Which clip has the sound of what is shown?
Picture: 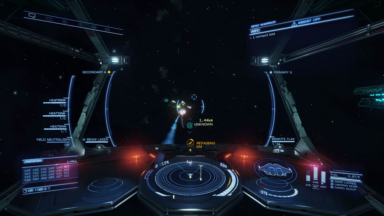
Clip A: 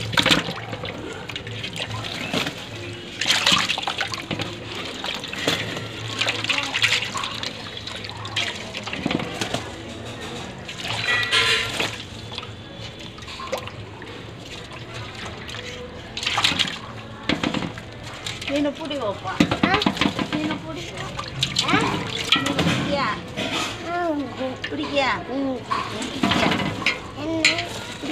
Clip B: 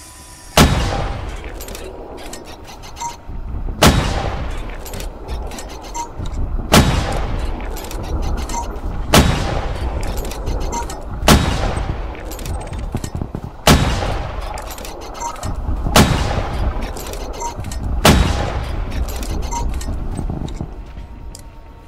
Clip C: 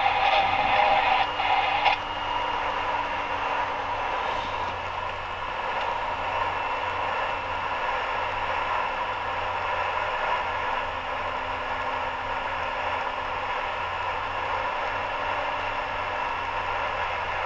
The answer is B